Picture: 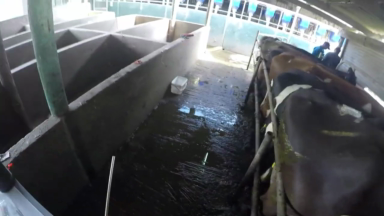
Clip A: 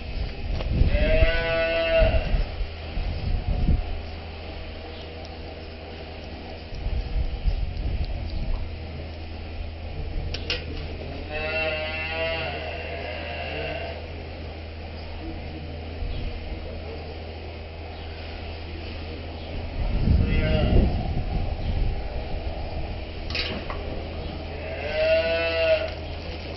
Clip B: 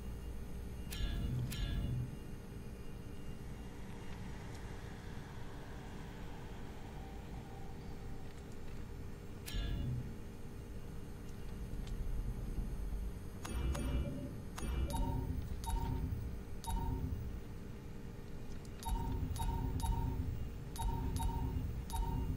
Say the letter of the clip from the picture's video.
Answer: A